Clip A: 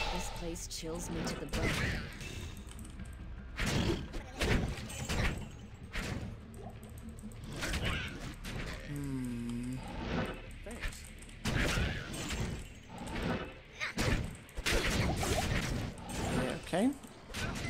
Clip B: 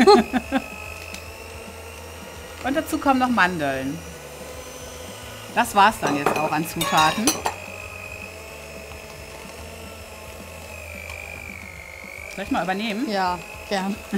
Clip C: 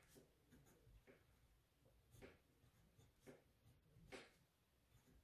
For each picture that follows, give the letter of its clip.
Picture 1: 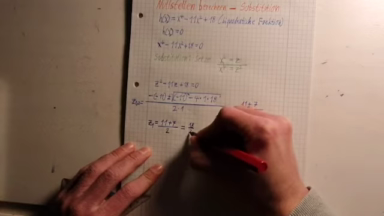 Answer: C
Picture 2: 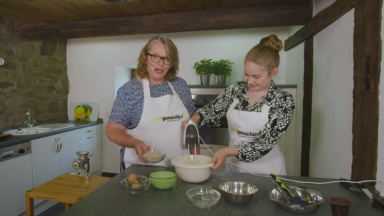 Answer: B